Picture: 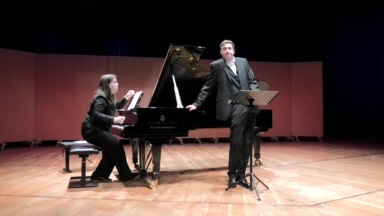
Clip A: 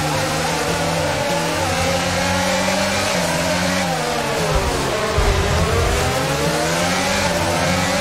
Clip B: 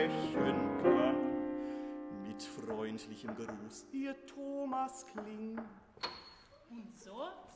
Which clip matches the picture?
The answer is B